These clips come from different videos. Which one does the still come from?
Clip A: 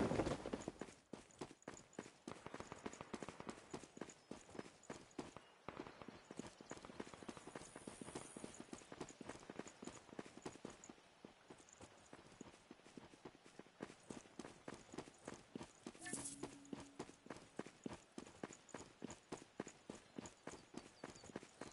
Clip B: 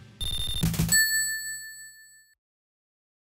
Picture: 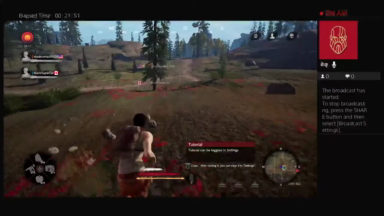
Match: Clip A